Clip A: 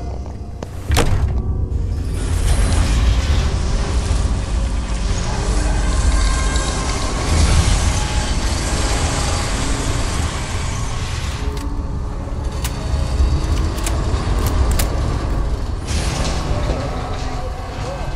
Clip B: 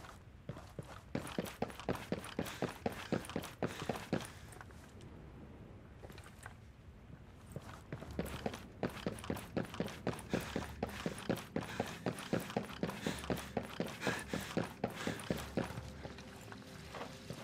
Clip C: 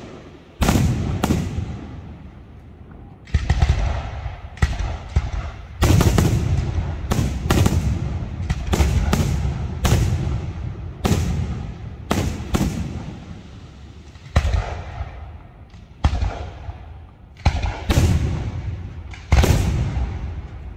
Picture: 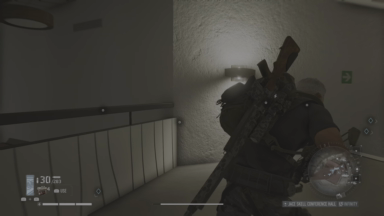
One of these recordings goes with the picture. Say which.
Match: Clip B